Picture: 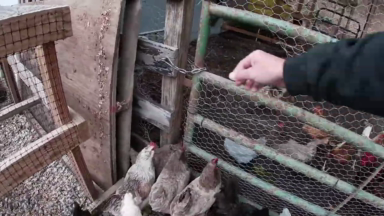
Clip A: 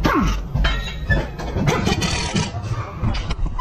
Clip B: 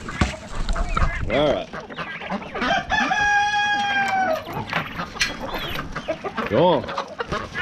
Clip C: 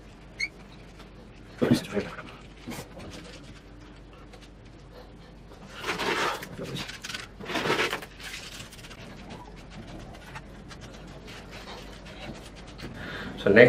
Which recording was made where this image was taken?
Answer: B